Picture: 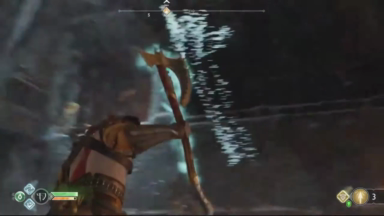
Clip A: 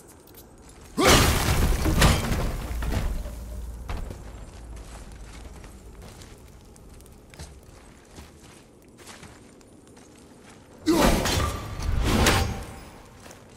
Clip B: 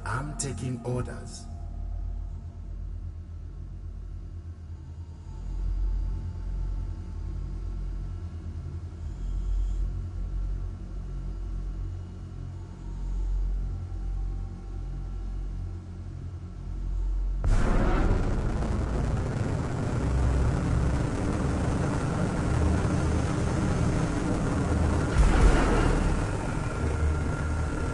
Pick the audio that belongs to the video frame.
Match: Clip A